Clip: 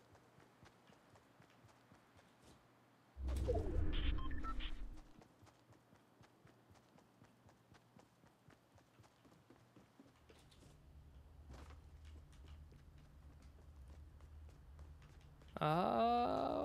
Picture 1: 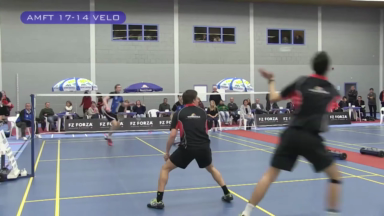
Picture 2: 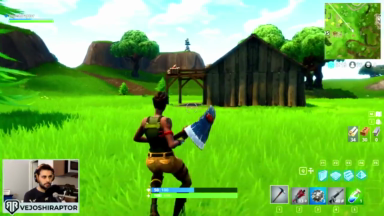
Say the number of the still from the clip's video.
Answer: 2